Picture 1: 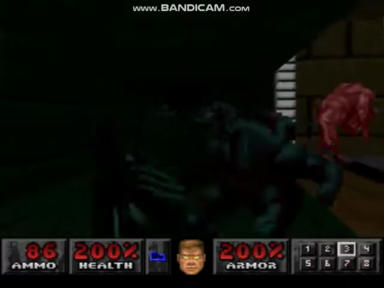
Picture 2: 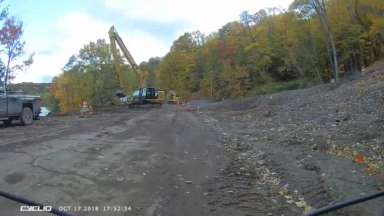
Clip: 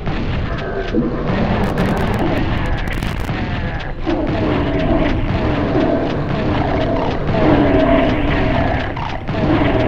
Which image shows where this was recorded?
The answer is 1